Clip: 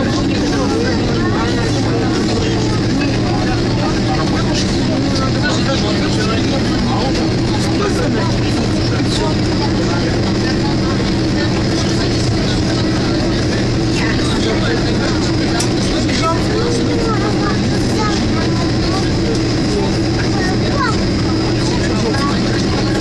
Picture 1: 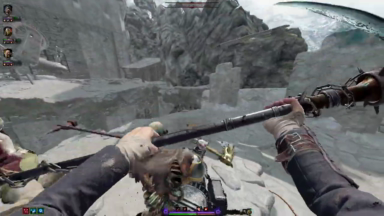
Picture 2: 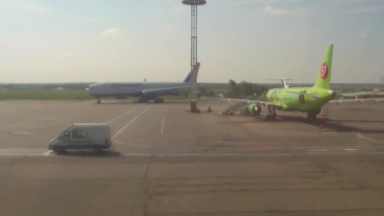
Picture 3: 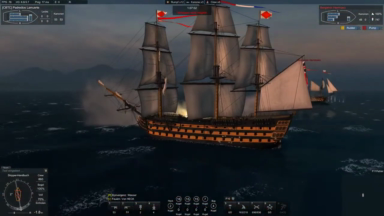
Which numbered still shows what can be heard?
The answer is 2